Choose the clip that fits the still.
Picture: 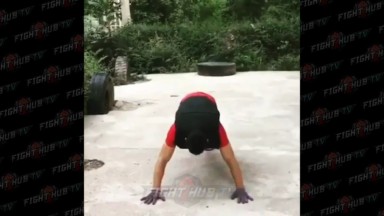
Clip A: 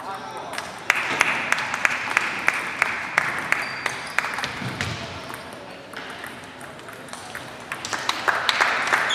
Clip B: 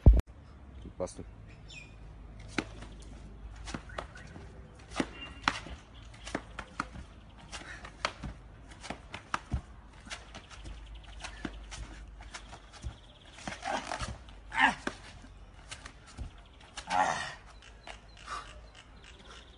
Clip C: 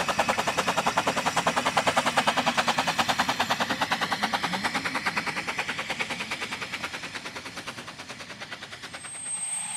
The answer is B